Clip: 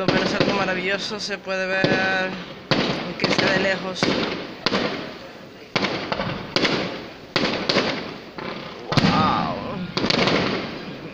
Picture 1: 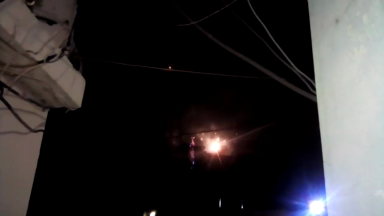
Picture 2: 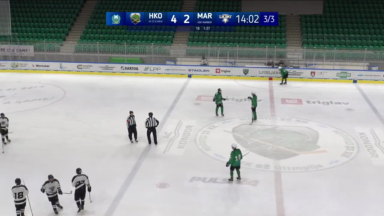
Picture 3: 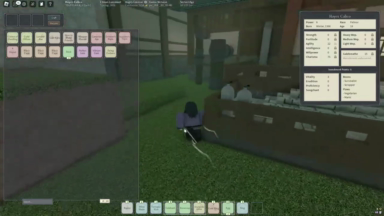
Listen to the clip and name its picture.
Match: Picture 1